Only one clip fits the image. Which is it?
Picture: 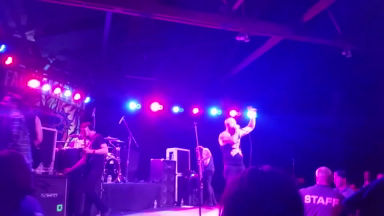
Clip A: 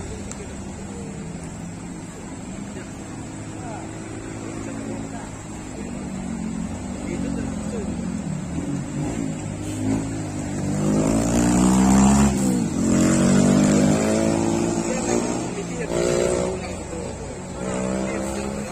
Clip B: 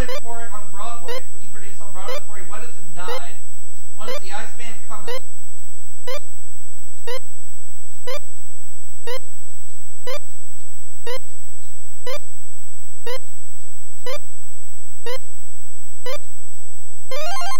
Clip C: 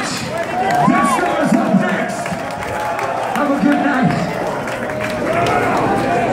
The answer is C